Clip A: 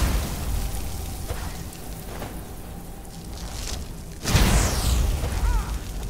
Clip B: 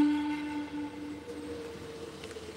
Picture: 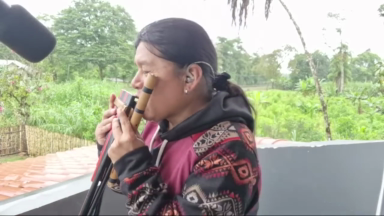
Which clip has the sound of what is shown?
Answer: B